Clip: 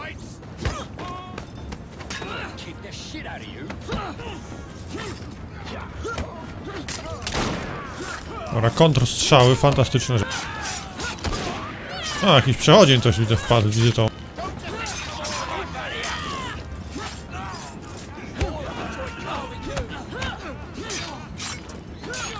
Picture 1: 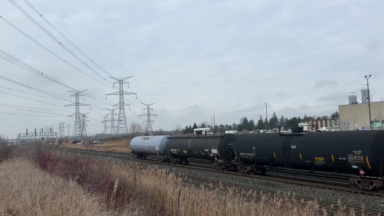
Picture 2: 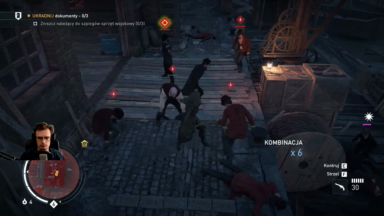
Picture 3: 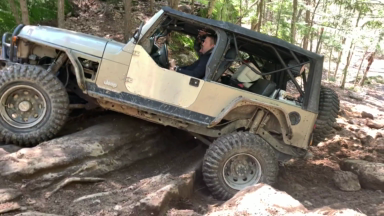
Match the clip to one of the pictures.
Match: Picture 2